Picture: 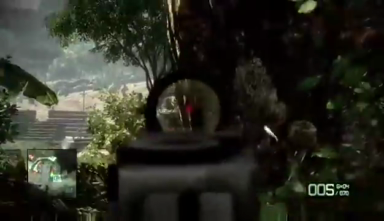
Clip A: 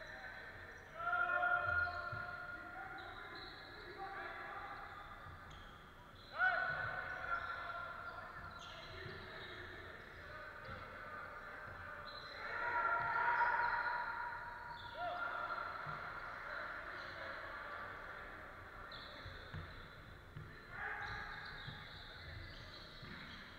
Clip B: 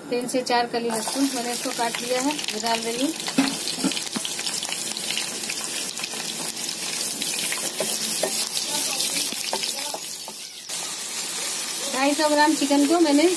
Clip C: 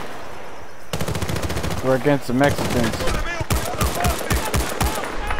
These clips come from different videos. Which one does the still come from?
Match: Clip C